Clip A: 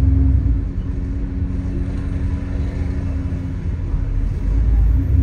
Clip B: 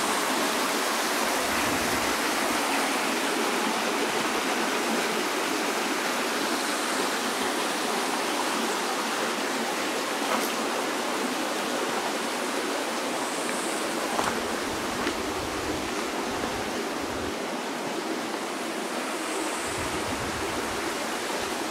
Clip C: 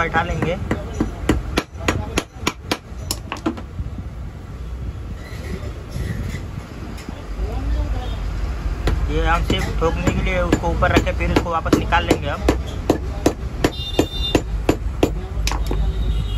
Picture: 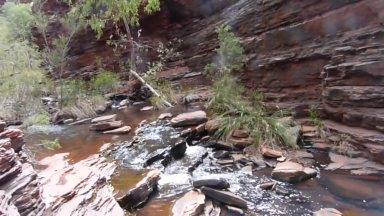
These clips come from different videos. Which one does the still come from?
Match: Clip B